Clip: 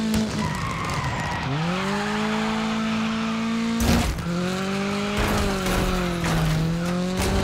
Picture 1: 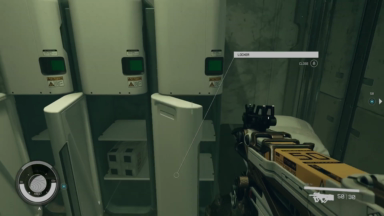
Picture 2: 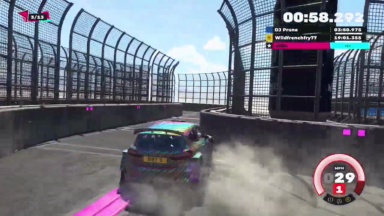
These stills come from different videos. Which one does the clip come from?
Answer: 2